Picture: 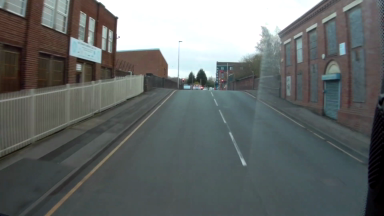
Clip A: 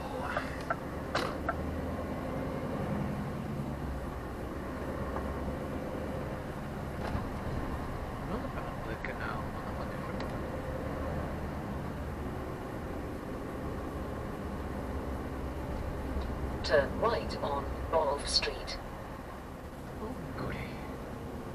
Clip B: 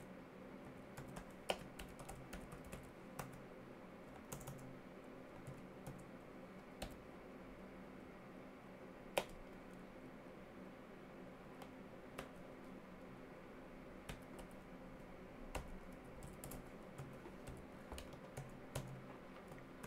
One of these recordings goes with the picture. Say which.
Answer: A